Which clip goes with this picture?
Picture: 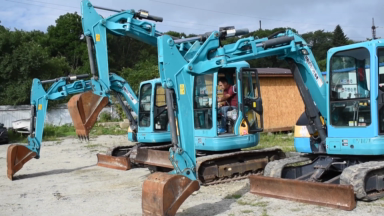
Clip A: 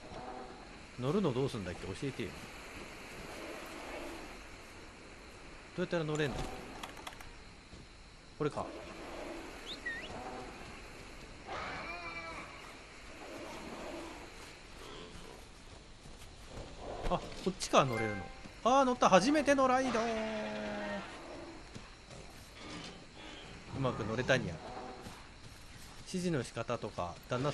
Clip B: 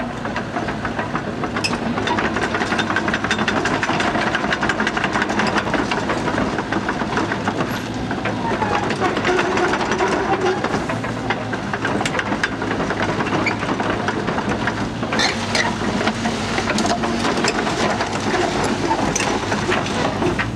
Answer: B